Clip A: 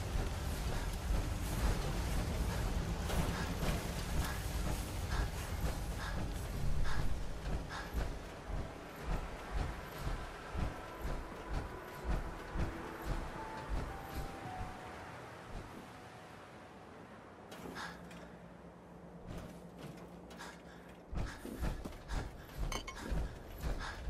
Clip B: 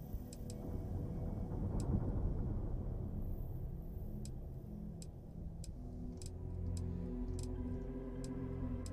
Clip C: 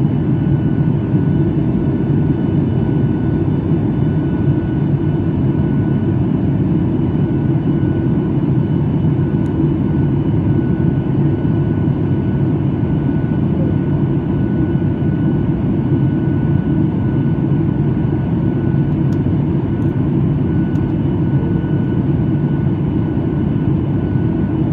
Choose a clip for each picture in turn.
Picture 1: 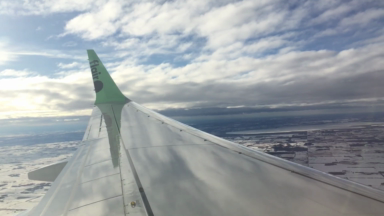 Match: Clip C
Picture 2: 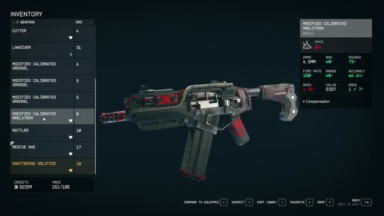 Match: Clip B